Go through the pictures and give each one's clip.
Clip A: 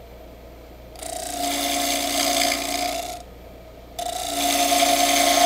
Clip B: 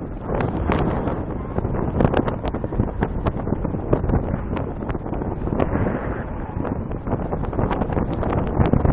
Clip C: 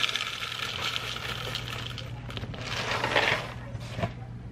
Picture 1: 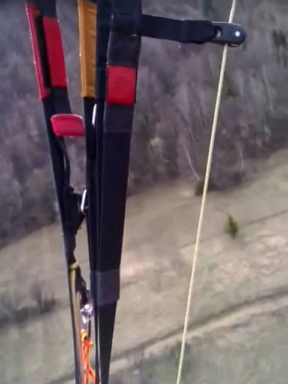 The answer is B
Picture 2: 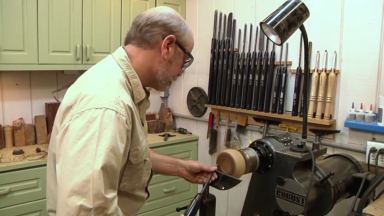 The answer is A